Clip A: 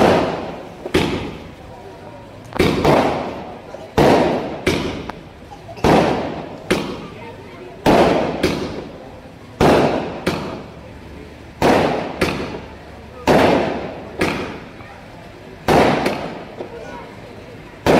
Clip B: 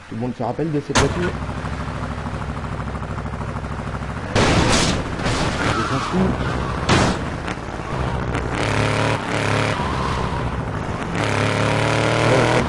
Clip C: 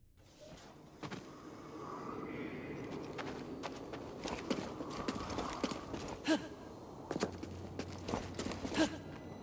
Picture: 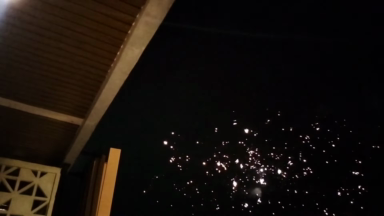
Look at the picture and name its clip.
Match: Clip A